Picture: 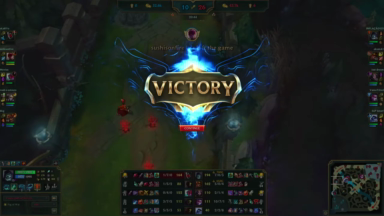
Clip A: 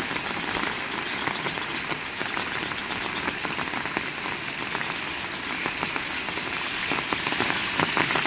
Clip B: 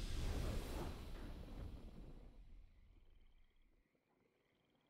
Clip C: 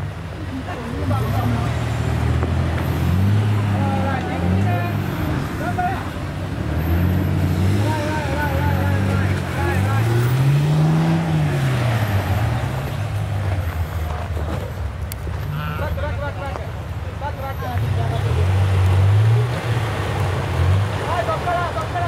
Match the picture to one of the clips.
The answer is B